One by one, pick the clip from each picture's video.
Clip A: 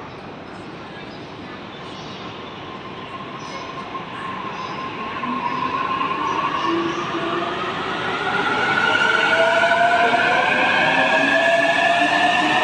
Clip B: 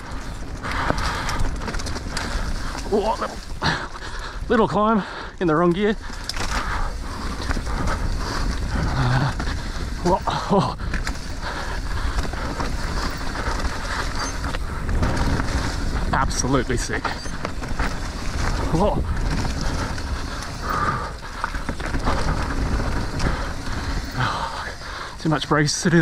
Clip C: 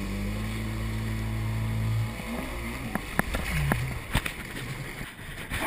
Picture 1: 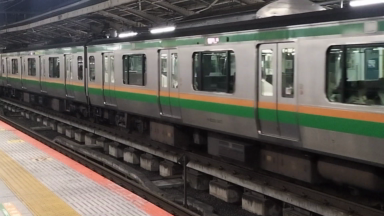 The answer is A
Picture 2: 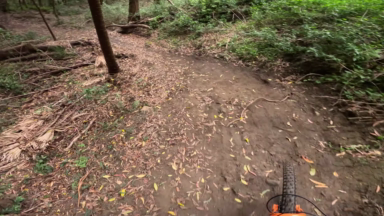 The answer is B